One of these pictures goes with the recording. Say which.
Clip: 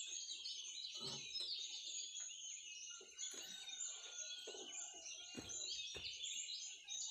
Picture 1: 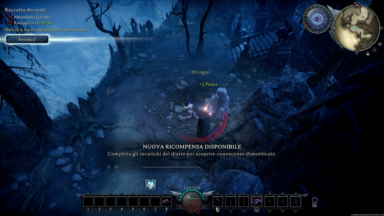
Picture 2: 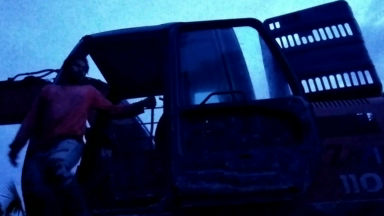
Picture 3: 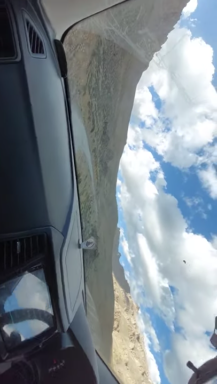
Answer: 2